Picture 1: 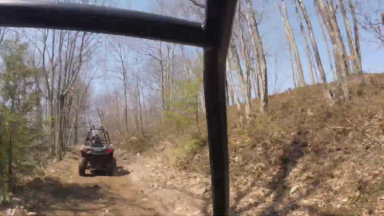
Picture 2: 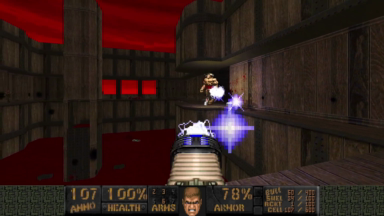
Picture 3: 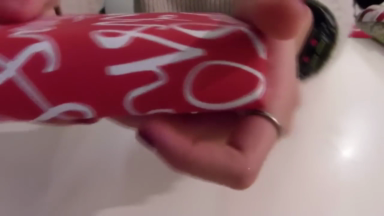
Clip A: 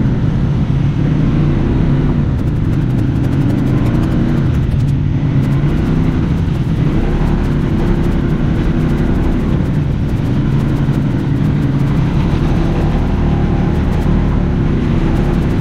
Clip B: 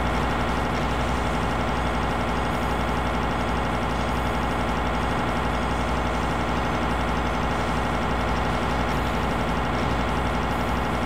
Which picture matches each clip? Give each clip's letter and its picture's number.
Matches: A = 1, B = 2